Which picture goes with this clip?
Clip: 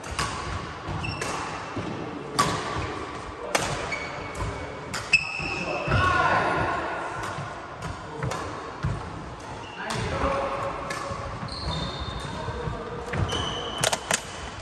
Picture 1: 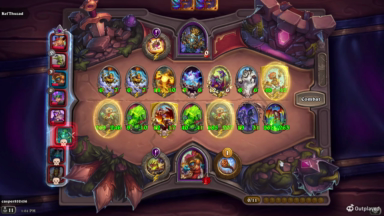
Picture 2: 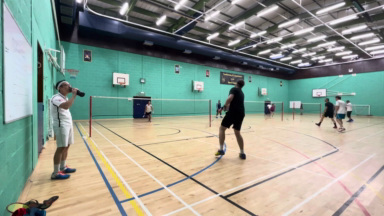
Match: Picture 2